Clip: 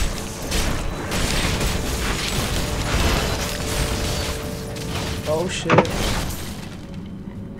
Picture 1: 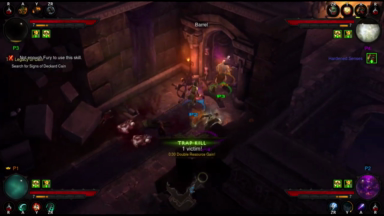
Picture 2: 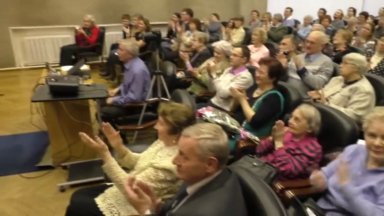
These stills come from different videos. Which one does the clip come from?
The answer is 1